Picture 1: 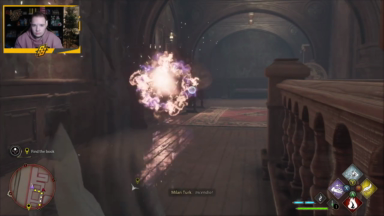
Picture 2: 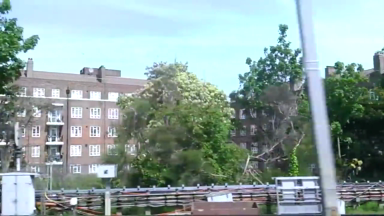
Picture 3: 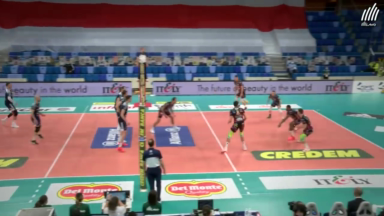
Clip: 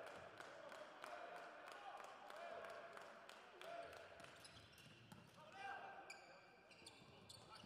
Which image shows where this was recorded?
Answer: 3